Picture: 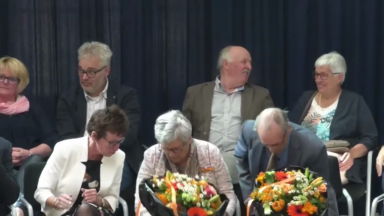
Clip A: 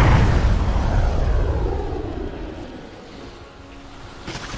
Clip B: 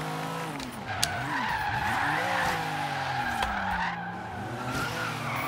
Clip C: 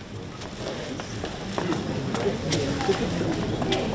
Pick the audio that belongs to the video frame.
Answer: C